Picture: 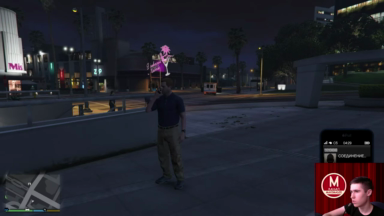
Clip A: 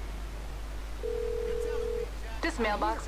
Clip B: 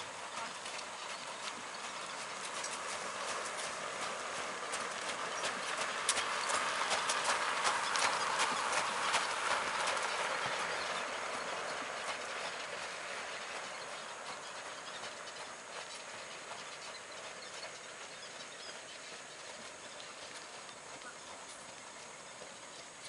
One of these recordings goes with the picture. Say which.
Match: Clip A